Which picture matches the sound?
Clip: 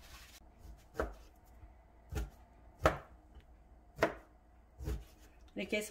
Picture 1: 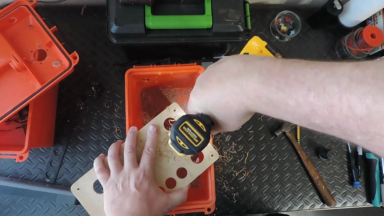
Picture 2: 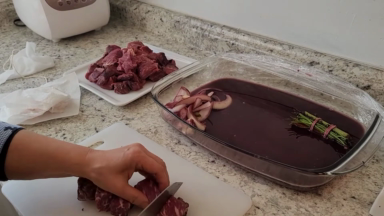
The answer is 2